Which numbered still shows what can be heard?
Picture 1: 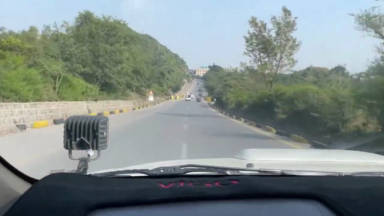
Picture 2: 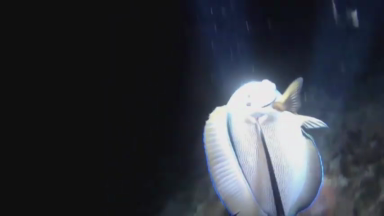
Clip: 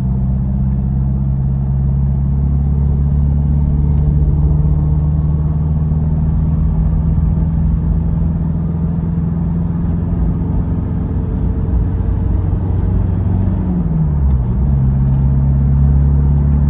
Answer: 1